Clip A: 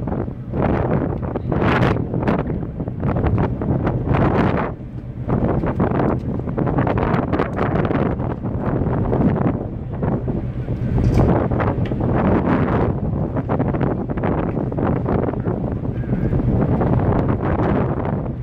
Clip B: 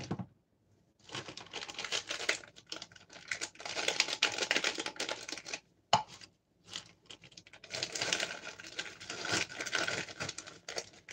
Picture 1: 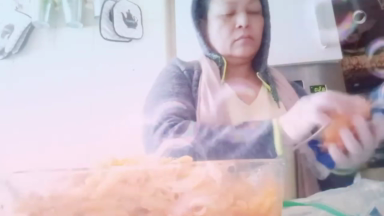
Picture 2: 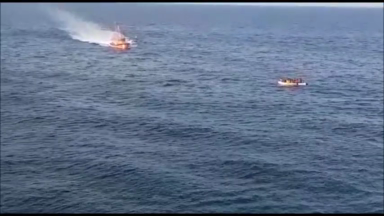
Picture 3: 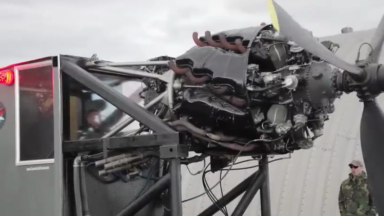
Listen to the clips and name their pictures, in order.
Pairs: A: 2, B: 1